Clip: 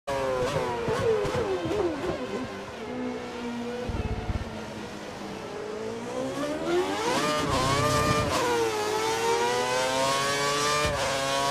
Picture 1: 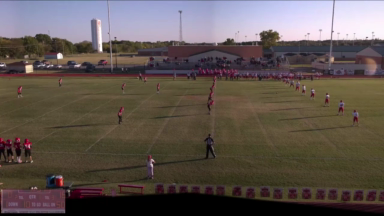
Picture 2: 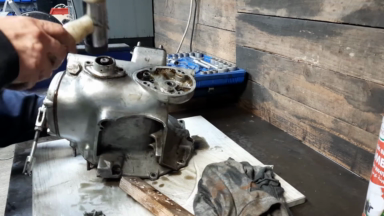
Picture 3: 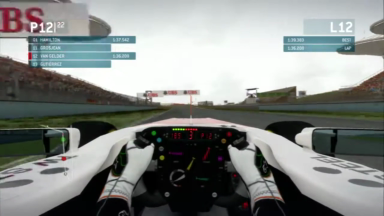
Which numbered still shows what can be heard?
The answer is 3